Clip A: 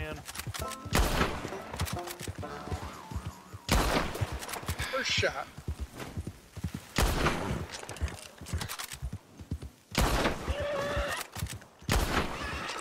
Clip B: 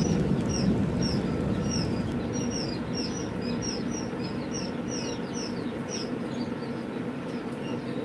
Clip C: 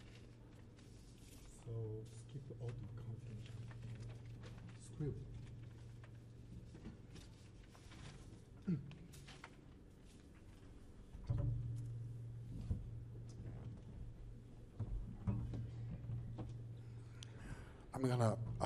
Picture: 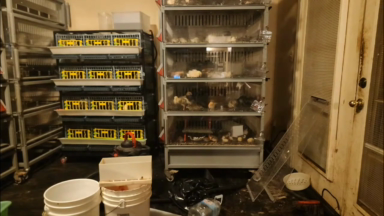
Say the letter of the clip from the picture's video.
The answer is B